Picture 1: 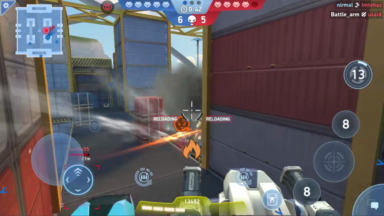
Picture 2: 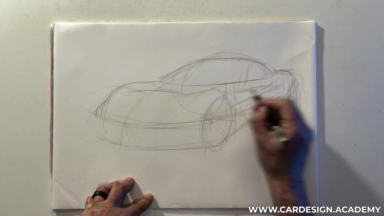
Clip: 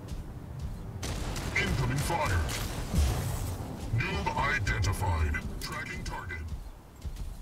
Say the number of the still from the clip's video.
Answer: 1